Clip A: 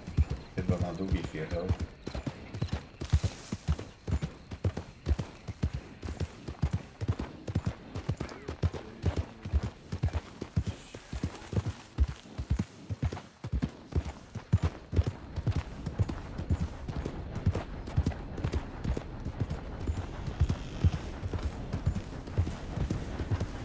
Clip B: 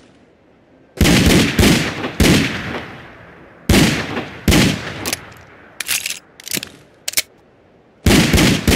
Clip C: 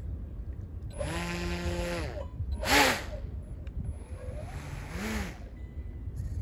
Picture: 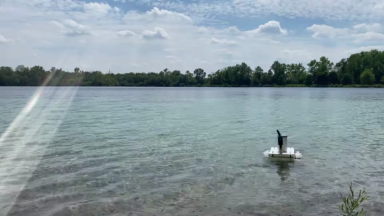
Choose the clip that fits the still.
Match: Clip C